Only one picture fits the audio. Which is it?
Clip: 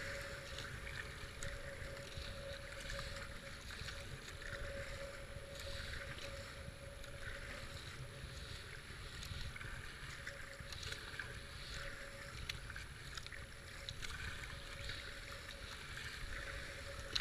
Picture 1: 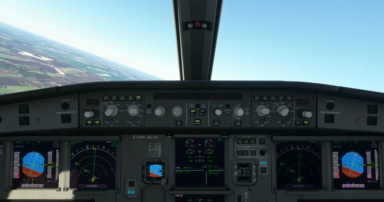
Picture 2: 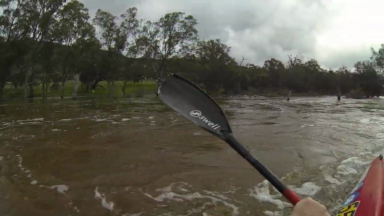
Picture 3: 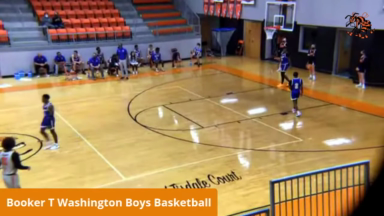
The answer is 2